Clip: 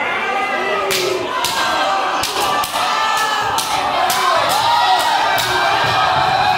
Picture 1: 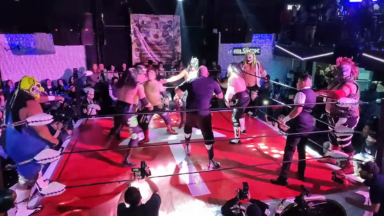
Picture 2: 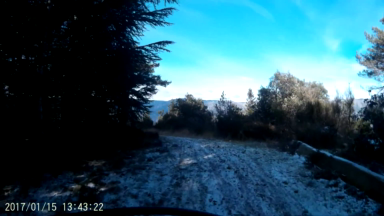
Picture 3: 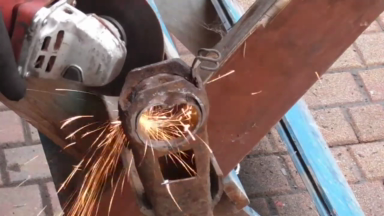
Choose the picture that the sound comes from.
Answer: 1